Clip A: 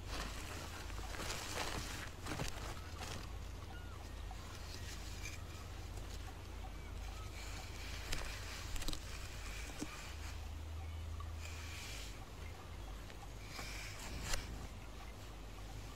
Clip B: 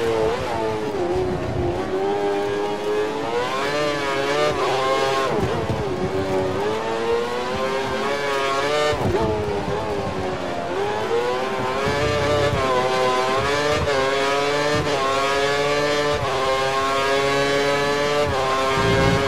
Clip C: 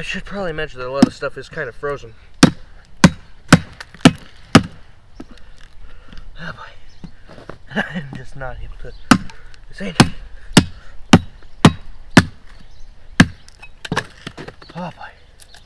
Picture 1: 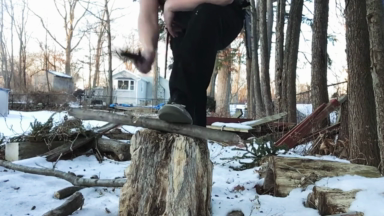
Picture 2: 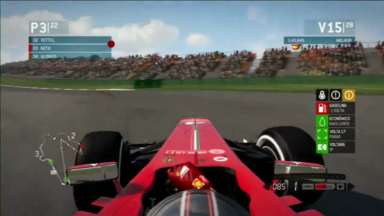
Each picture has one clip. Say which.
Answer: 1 C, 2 B